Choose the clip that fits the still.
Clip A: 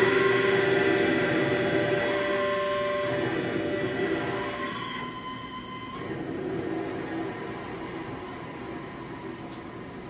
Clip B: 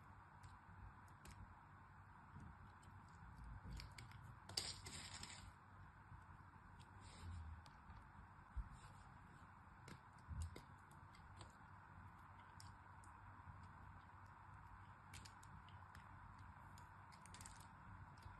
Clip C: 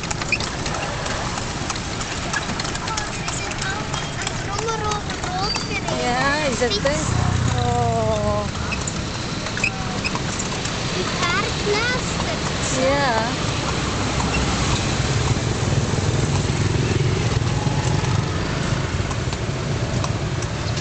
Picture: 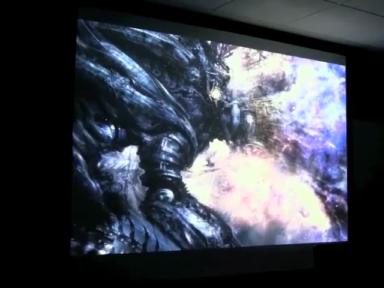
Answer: A